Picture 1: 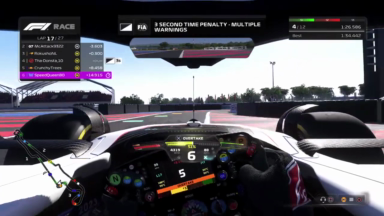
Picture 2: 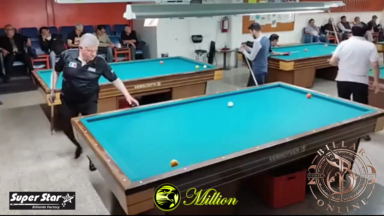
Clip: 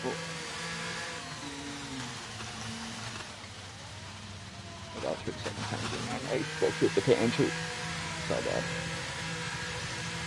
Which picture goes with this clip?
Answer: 1